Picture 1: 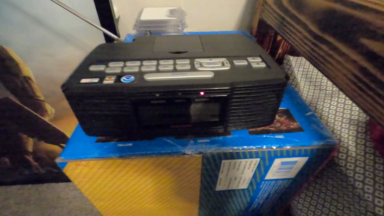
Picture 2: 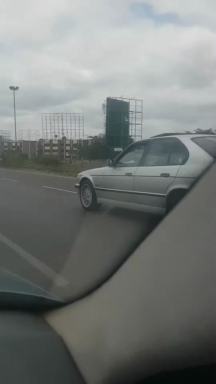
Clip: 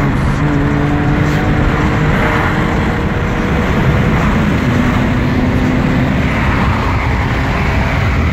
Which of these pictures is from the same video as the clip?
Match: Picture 2